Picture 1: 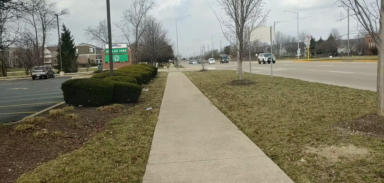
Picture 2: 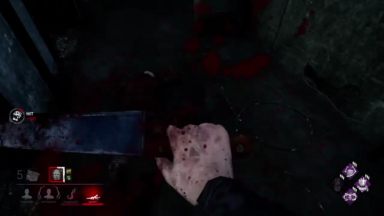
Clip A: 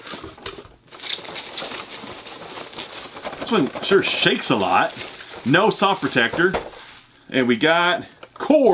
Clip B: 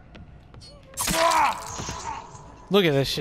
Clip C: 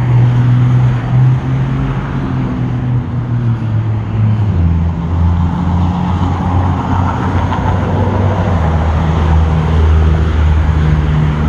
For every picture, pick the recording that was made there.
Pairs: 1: C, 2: B